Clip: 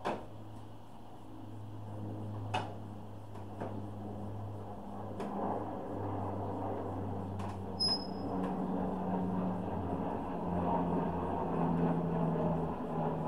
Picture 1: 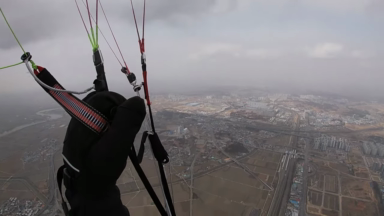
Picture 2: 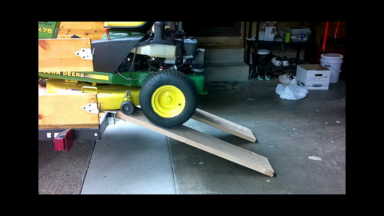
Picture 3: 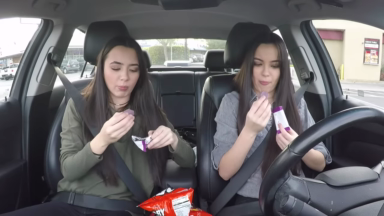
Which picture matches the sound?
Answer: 2